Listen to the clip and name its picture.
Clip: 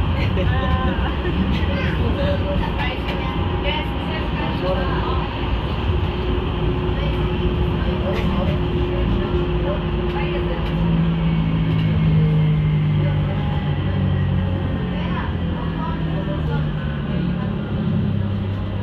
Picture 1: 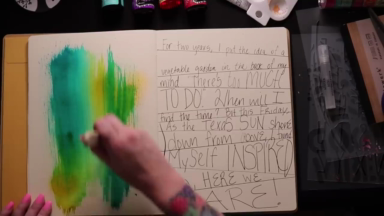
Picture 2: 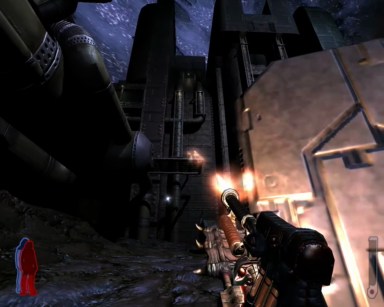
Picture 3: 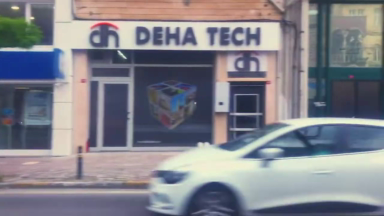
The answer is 3